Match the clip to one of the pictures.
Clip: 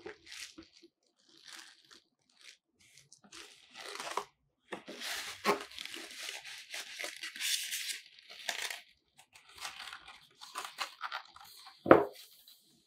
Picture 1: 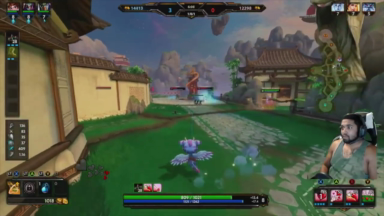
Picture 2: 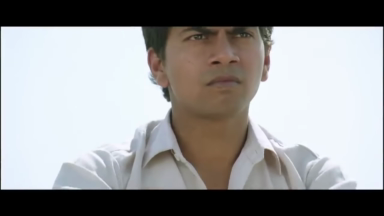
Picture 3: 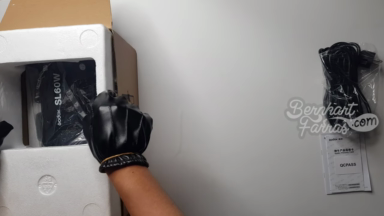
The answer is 3